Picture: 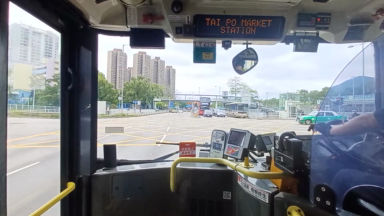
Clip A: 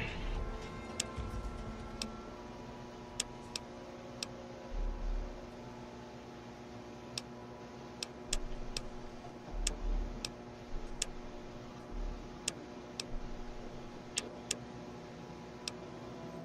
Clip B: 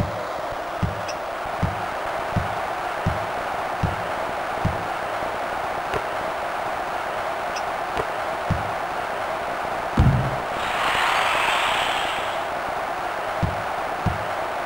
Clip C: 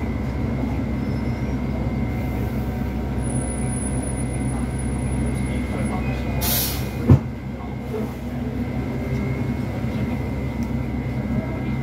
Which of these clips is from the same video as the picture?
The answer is C